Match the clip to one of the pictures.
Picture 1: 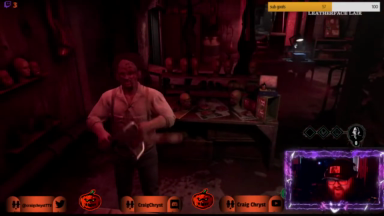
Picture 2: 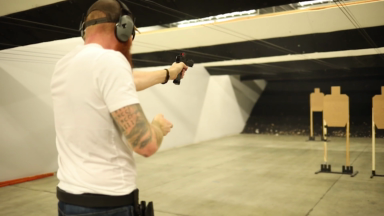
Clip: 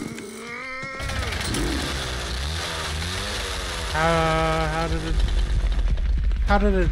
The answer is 1